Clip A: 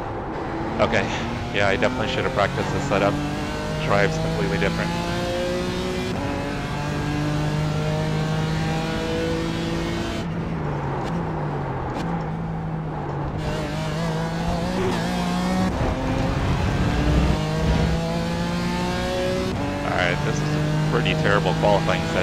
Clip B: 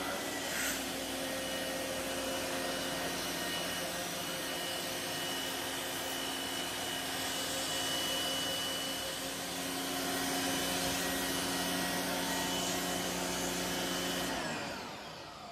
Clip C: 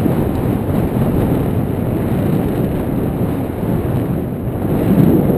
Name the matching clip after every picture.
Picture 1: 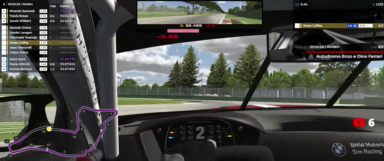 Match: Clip A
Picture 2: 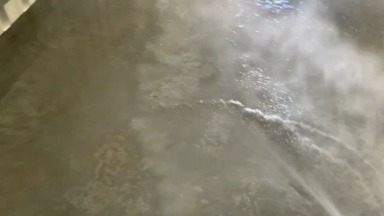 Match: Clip B